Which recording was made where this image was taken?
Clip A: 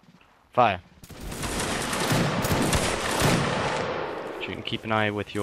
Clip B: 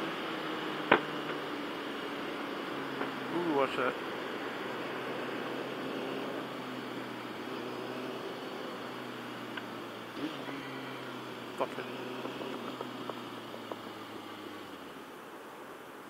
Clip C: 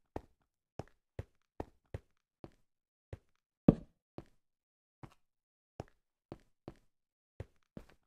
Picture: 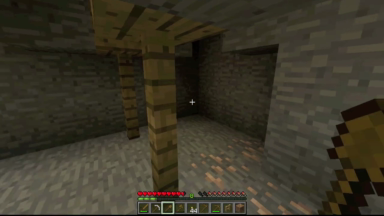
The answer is C